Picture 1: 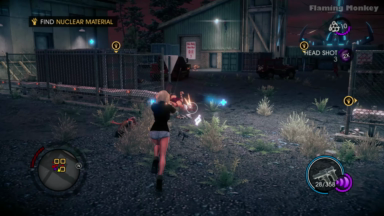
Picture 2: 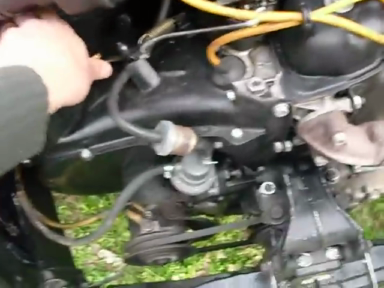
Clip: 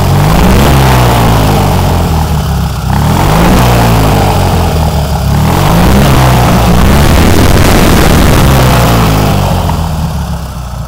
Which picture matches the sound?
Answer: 2